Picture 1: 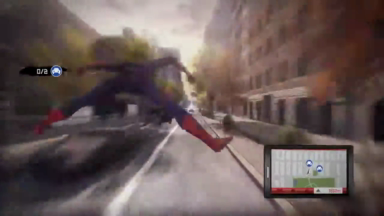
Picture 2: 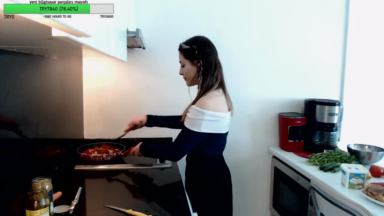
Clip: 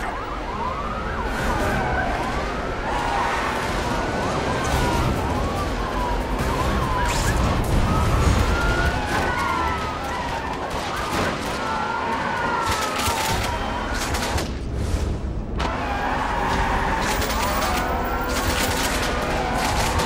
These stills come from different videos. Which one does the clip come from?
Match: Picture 1